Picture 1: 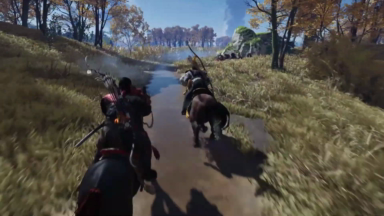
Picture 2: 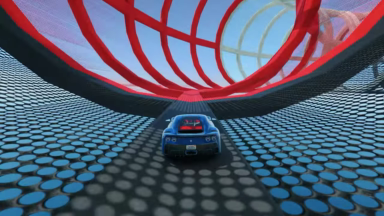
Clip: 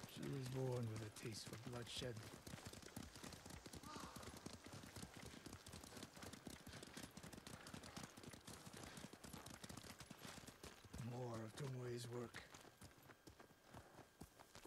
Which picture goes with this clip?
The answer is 1